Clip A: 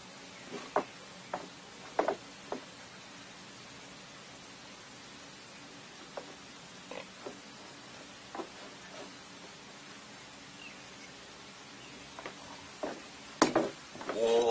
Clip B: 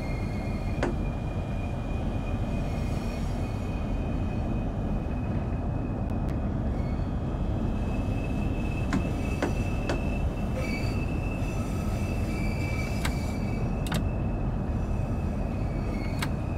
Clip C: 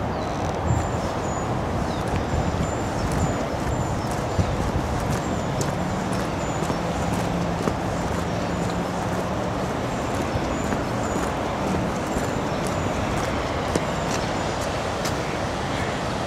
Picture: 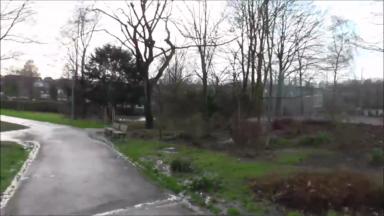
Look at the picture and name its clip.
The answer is C